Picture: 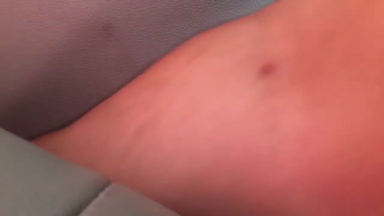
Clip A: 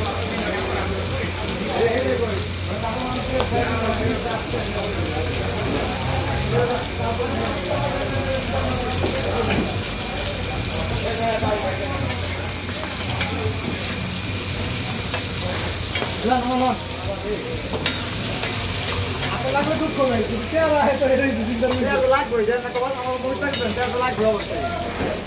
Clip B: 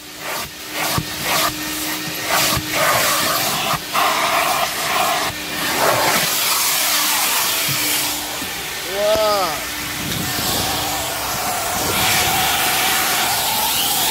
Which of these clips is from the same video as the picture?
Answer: B